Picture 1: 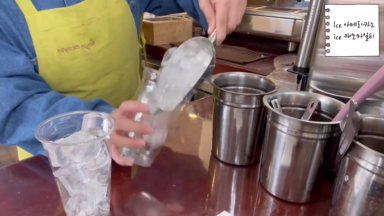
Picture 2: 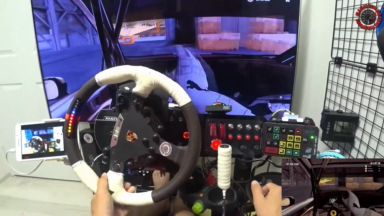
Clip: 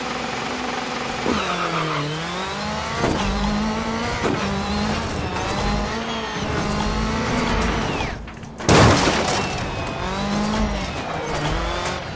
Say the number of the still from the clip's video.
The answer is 2